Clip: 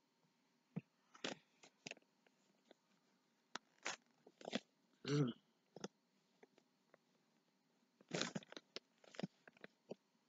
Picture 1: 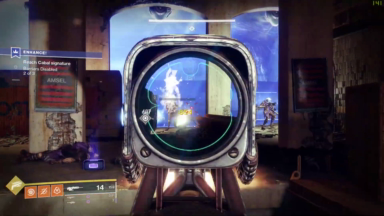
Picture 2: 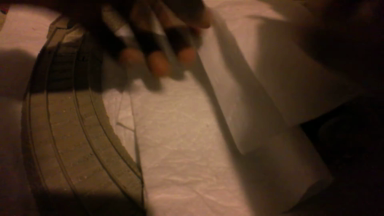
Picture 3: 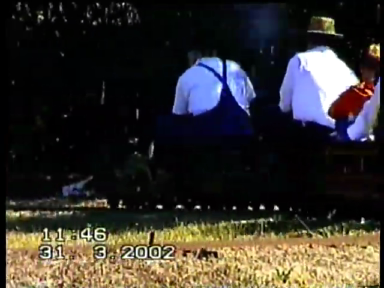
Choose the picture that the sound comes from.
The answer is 2